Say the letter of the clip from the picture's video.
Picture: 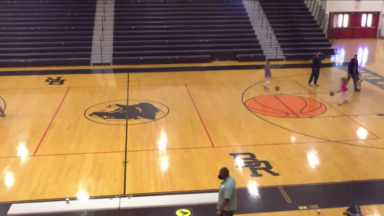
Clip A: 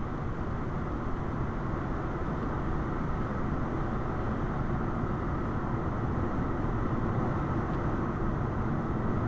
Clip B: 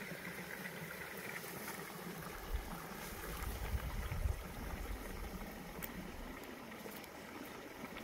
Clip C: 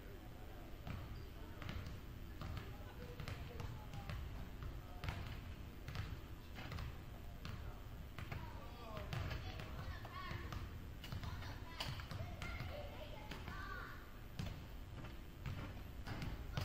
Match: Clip C